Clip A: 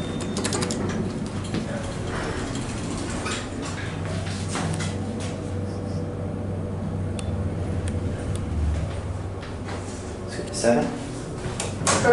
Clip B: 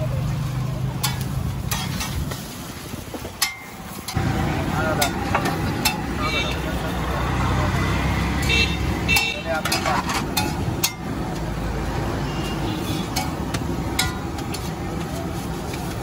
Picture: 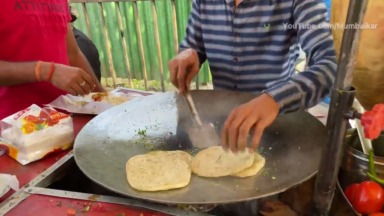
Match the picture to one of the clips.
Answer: B